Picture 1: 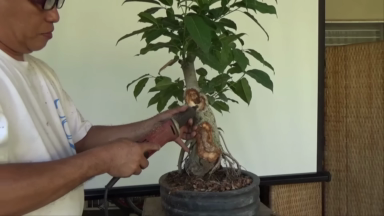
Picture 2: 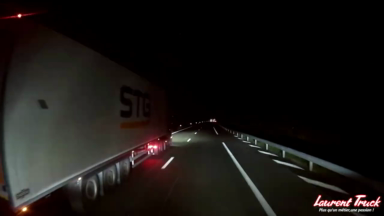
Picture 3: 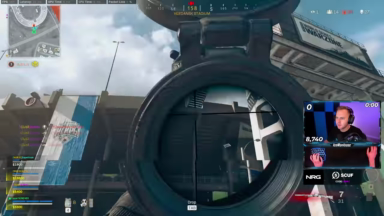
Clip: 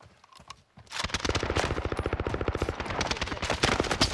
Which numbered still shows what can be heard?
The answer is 3